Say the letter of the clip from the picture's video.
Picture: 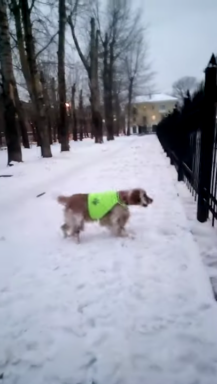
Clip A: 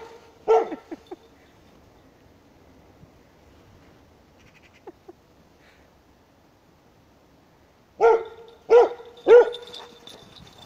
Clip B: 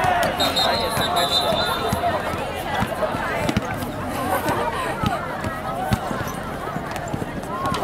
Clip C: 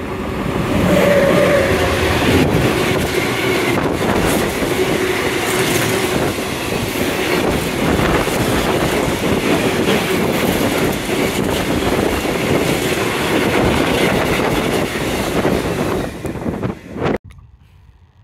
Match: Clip A